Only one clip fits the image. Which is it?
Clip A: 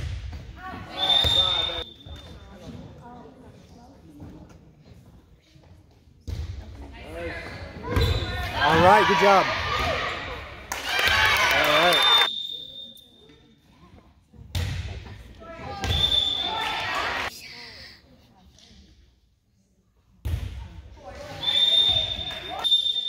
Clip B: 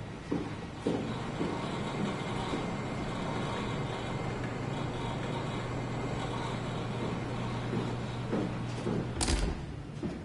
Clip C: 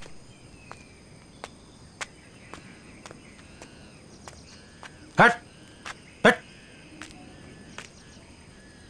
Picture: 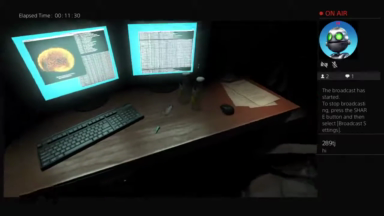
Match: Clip B